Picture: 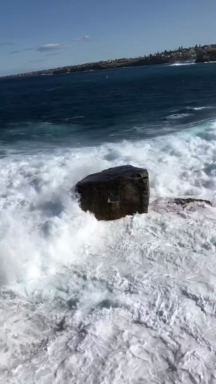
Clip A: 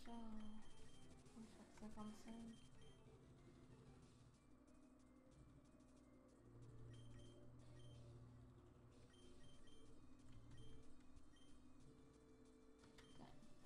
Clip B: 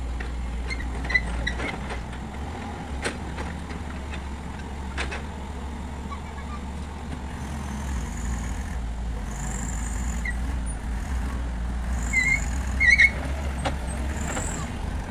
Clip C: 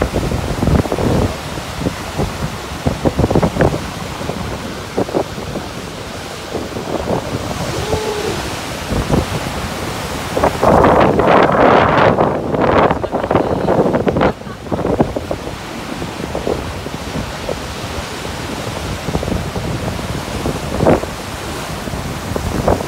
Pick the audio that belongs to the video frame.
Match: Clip C